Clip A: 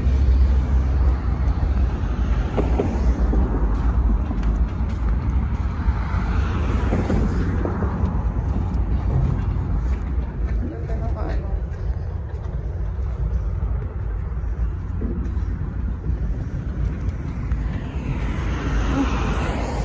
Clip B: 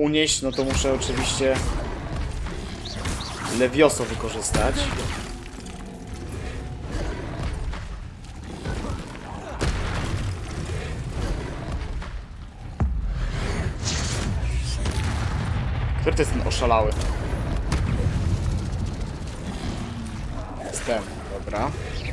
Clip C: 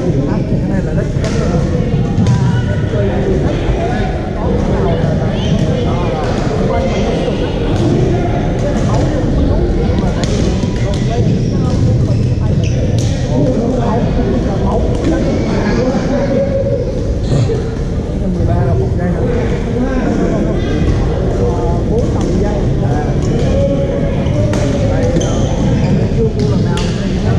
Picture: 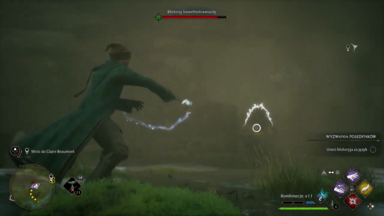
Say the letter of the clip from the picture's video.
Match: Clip B